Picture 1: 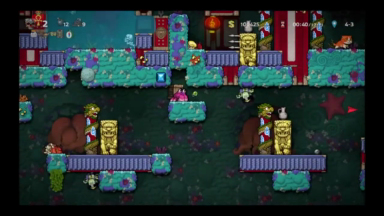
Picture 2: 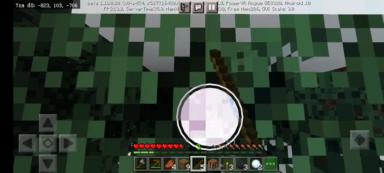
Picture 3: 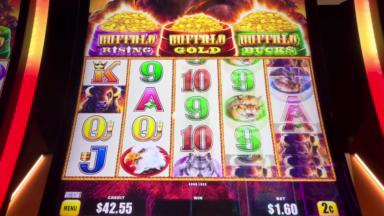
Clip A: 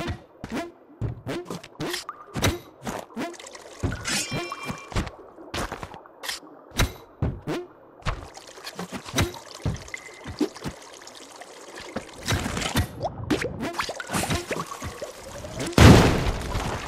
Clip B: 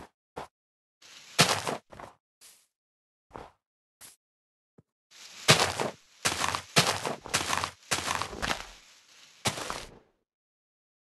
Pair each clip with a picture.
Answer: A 1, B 2